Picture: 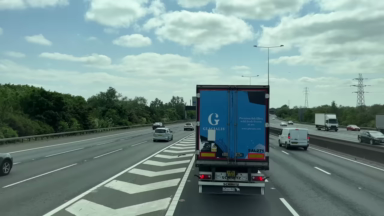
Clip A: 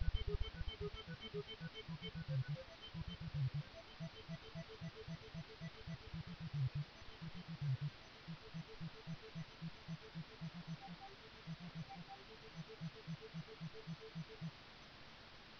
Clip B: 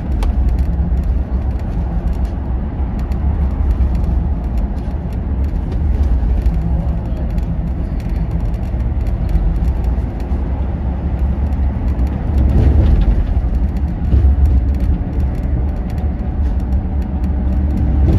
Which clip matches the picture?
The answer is B